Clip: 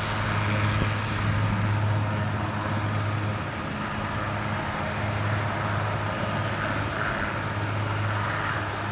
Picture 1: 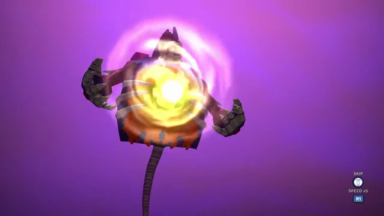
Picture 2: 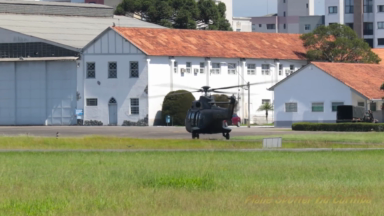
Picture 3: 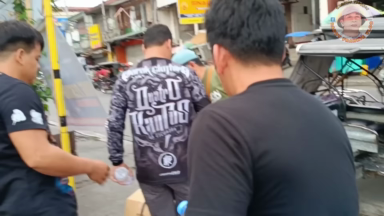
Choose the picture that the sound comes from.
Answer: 2